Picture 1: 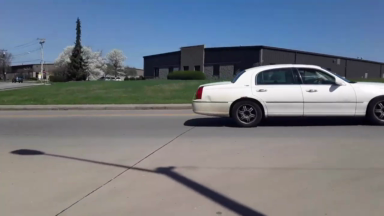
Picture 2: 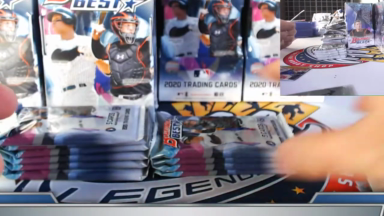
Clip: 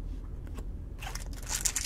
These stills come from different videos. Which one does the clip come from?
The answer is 2